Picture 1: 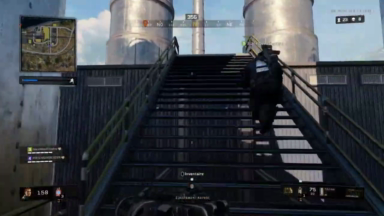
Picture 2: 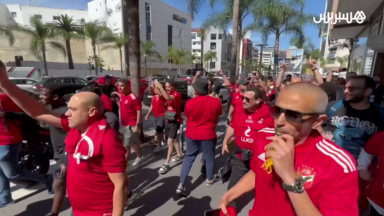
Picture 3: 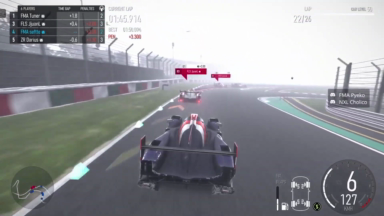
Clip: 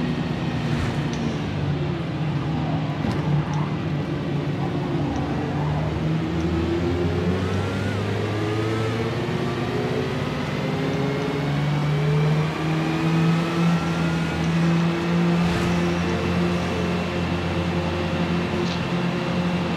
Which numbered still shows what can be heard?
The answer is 3